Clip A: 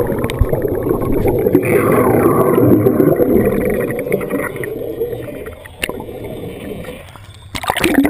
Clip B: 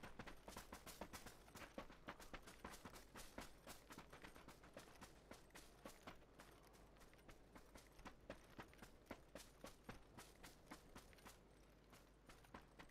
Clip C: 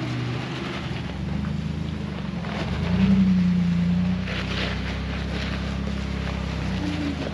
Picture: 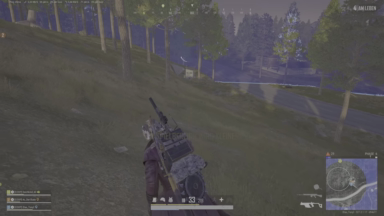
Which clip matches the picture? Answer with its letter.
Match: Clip B